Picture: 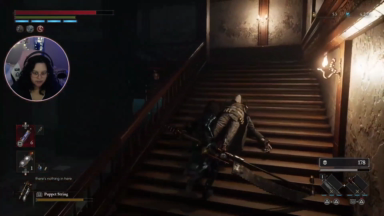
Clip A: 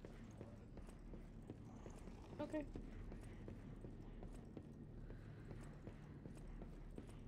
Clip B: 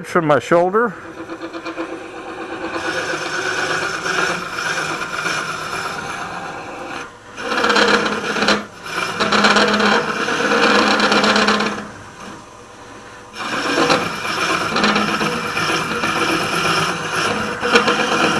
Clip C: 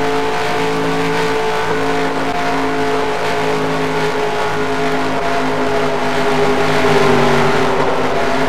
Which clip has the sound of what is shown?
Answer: A